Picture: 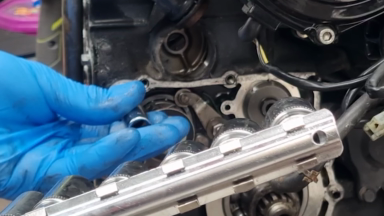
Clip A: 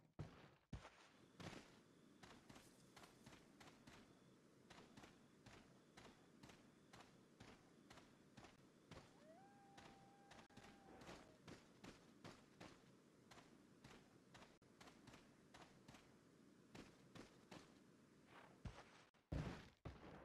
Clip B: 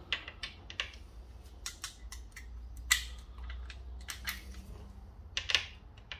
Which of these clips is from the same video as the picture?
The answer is B